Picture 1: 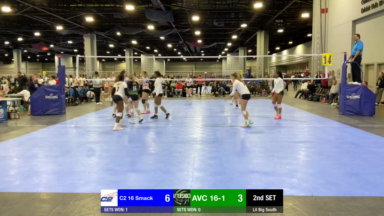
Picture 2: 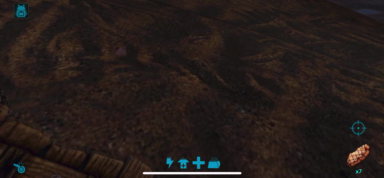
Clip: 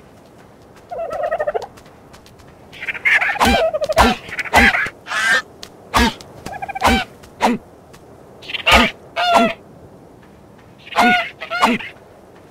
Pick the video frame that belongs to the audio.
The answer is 2